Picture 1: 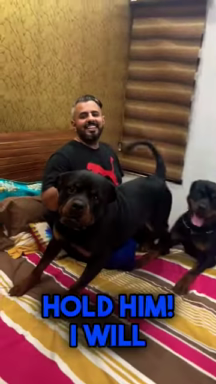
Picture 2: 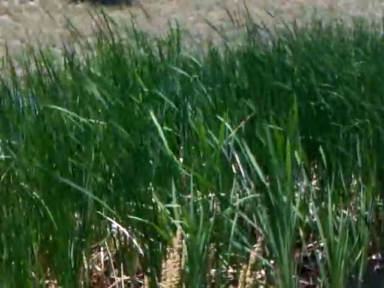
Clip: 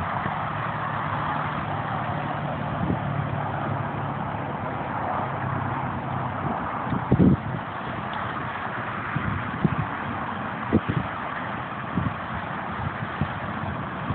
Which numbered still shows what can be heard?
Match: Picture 2